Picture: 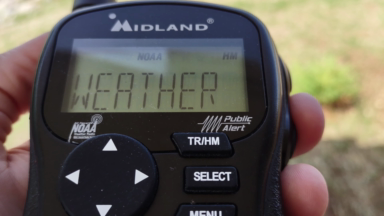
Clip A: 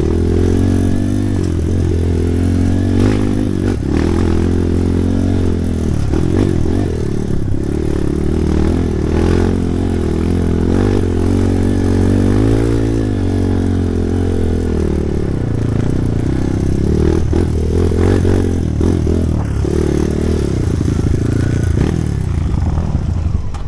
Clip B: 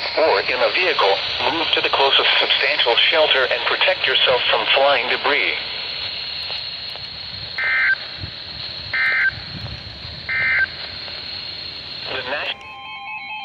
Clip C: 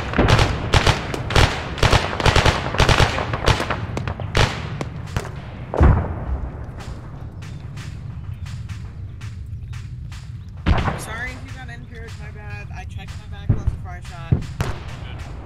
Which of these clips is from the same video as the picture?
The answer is B